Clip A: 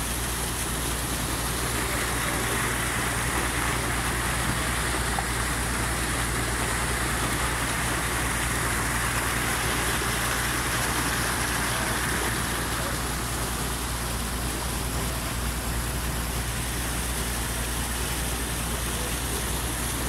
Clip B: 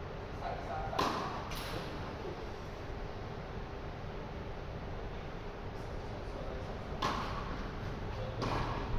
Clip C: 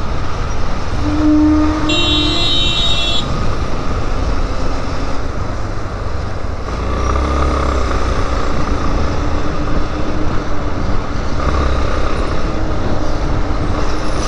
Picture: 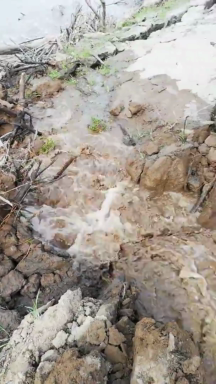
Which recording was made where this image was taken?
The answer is A